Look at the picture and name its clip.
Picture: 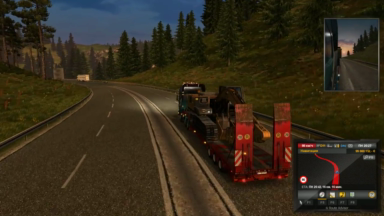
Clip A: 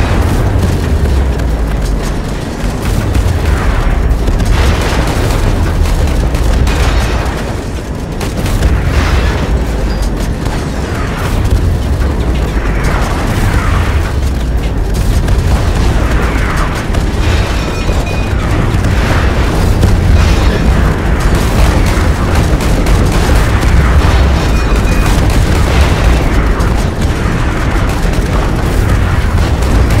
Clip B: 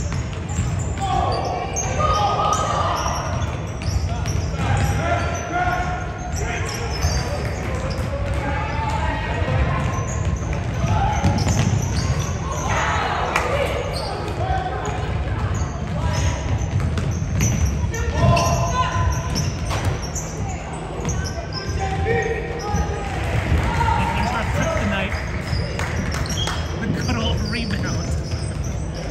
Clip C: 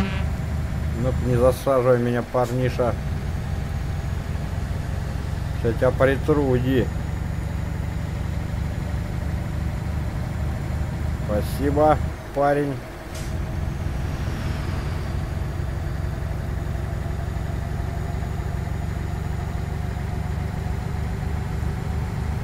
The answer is C